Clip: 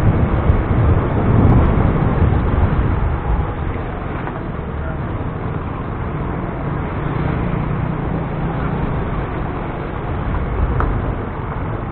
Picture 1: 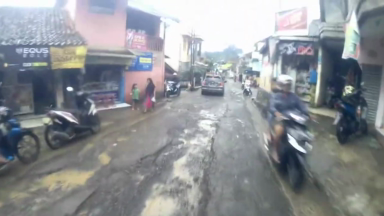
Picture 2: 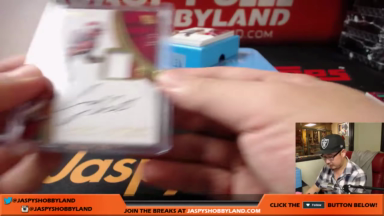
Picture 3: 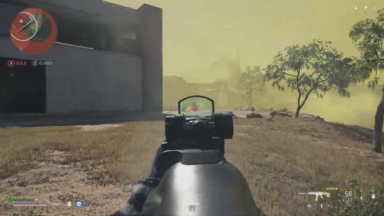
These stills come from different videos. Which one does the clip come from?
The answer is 1